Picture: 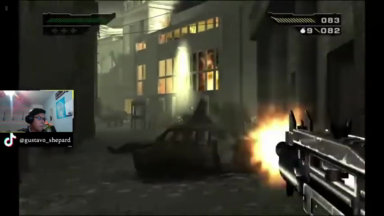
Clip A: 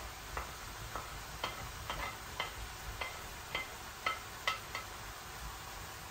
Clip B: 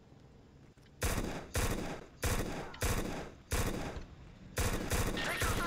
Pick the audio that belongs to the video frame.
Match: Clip B